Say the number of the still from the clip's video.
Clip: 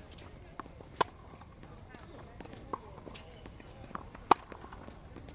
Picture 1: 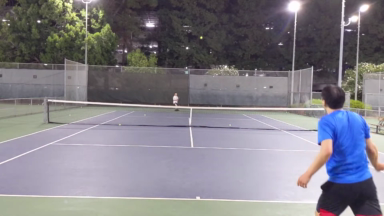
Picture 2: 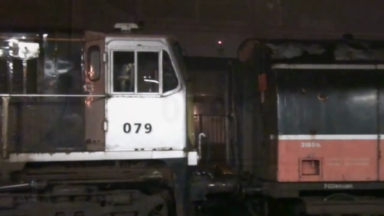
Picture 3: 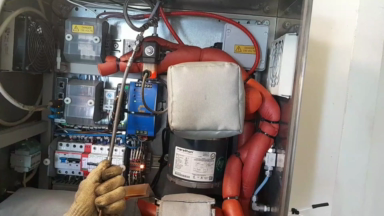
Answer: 1